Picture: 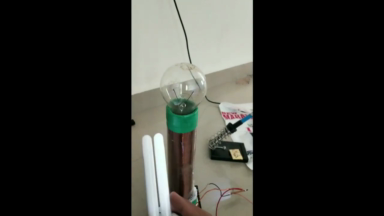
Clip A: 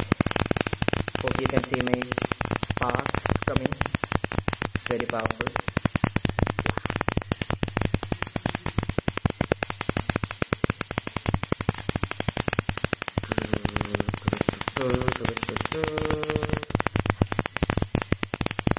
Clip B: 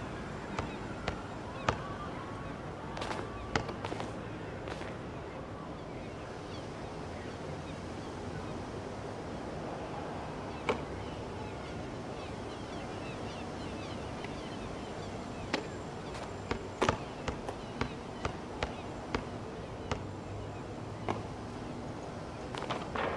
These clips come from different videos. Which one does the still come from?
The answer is A